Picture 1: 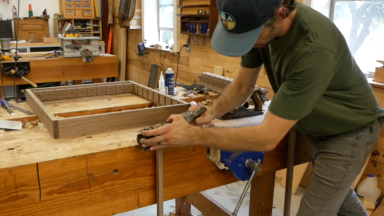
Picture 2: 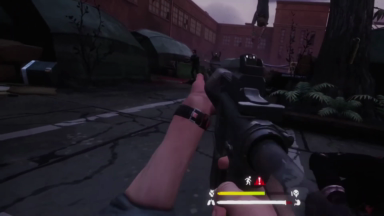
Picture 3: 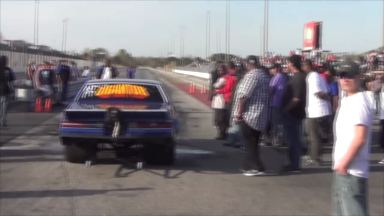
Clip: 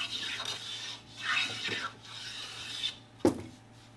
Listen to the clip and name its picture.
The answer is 1